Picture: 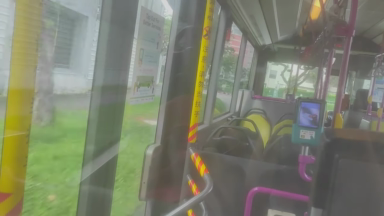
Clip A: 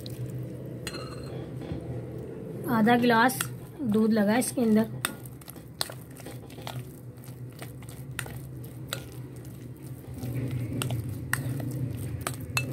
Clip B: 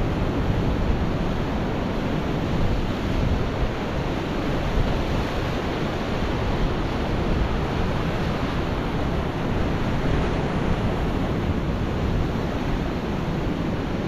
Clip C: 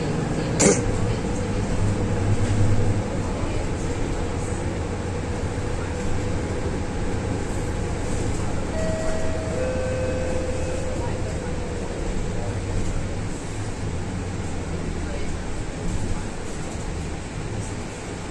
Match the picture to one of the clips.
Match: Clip C